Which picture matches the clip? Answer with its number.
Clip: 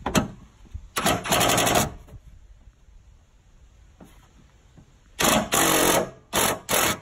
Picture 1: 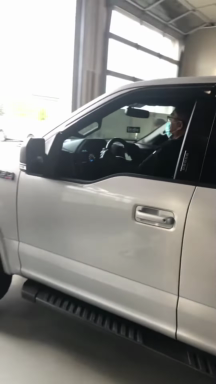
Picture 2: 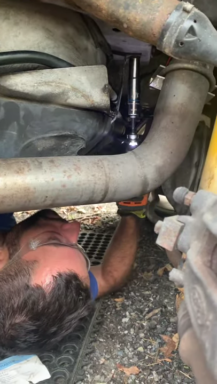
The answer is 2